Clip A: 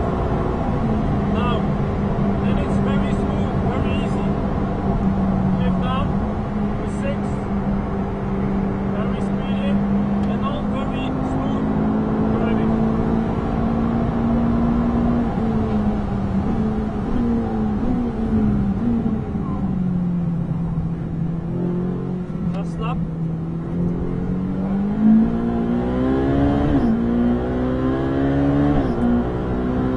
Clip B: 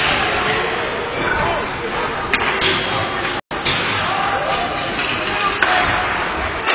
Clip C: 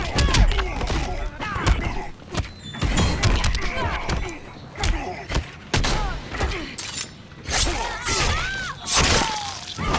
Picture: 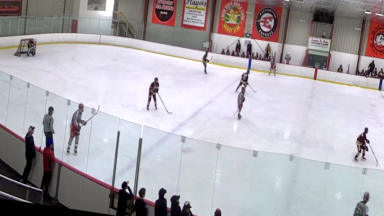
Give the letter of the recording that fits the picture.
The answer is B